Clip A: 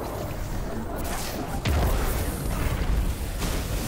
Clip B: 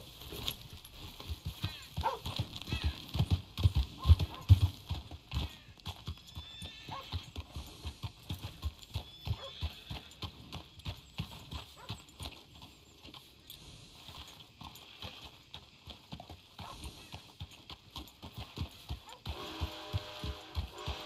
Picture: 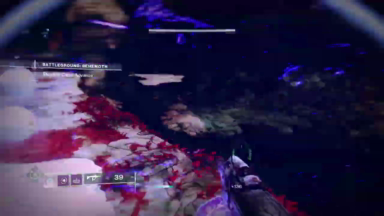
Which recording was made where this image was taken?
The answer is A